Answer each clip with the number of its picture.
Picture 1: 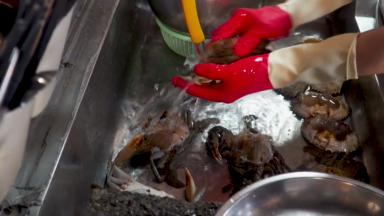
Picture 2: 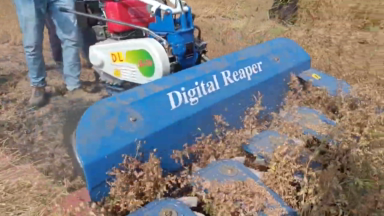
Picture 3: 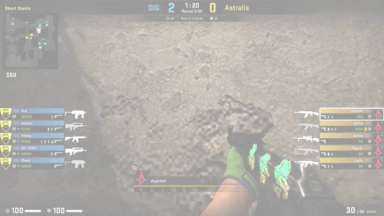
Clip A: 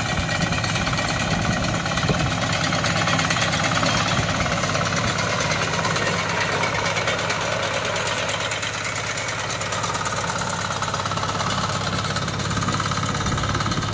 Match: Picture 2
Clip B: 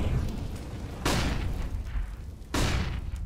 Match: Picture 3